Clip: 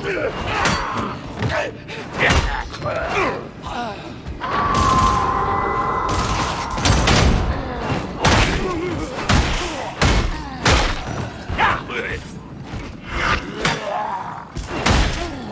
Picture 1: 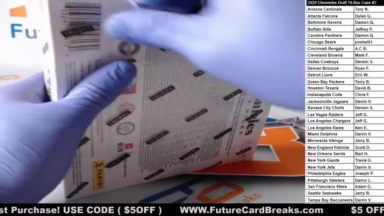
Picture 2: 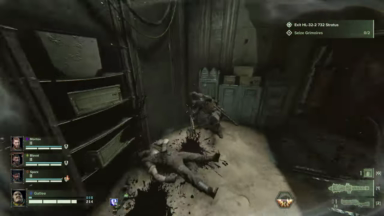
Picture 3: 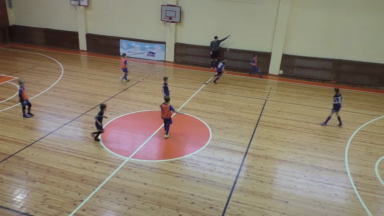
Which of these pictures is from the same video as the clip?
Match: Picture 2